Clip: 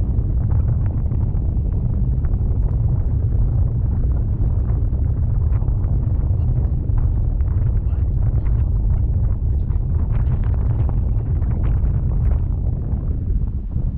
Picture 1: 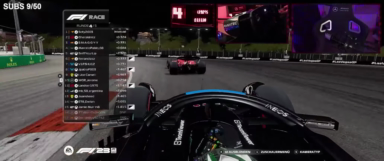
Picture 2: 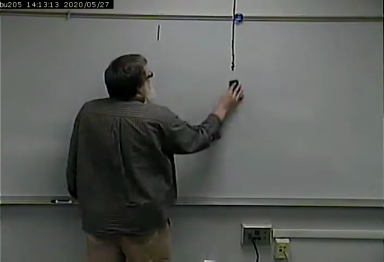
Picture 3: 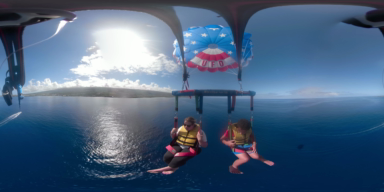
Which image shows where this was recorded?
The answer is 3